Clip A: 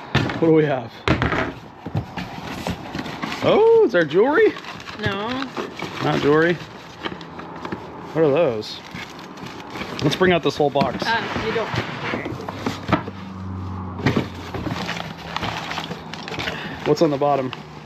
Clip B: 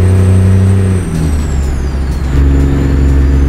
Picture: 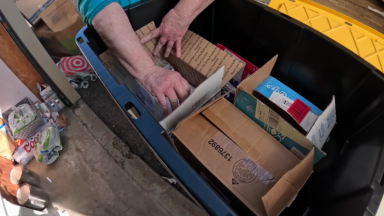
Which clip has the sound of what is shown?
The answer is A